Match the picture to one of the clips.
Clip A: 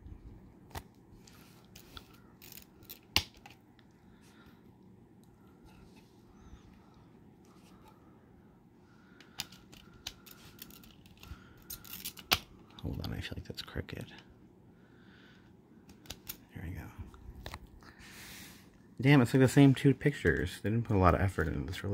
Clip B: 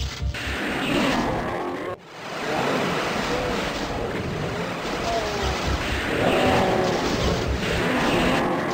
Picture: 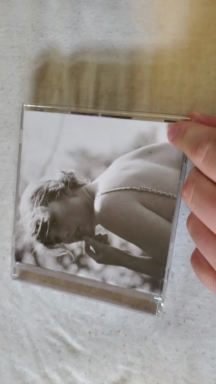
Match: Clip A